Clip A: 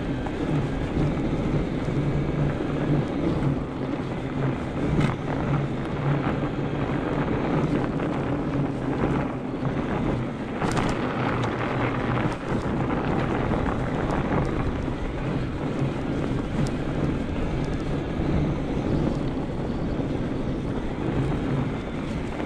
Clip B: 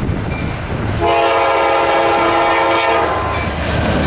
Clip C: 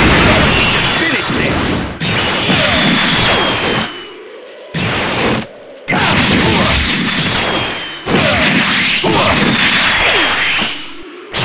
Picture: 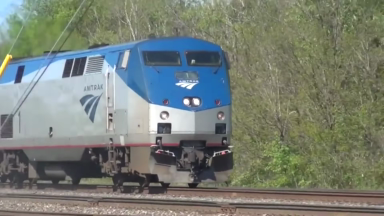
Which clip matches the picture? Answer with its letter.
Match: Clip B